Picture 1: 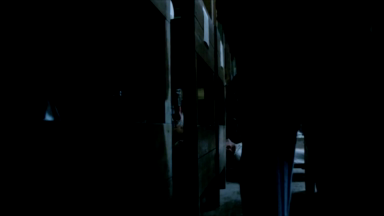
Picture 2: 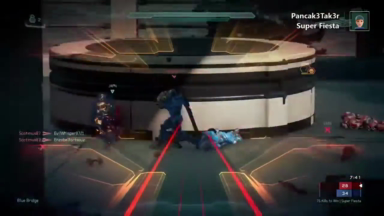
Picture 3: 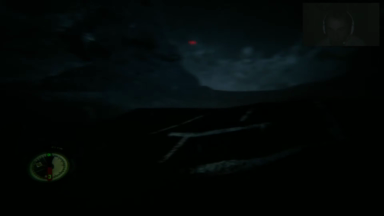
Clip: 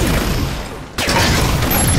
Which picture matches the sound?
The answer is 2